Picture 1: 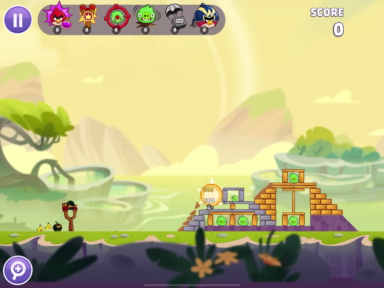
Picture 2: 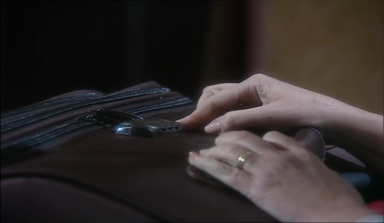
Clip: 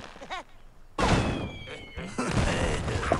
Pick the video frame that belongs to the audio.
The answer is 1